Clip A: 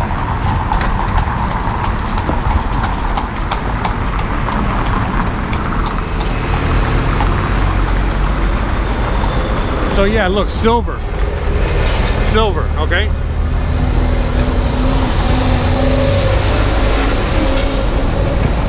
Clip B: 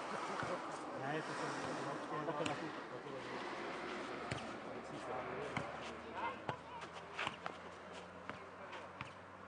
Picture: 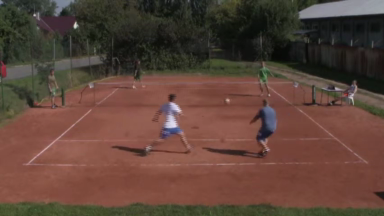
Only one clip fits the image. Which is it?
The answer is B